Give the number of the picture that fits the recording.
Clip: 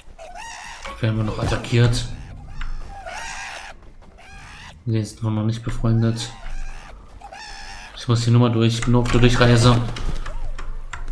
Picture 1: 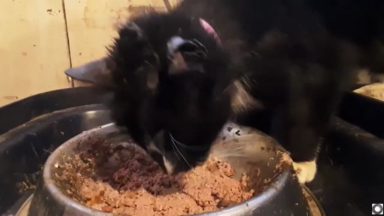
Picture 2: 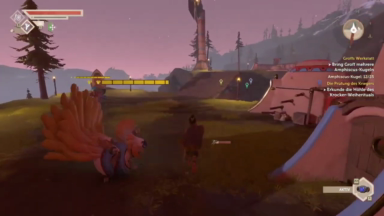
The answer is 2